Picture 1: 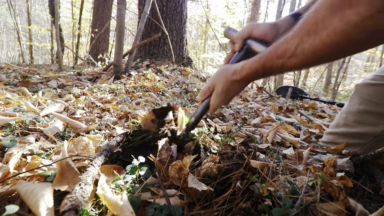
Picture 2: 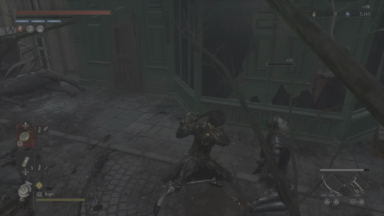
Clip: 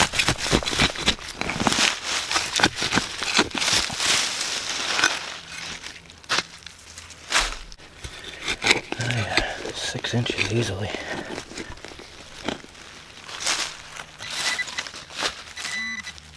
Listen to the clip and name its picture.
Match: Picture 1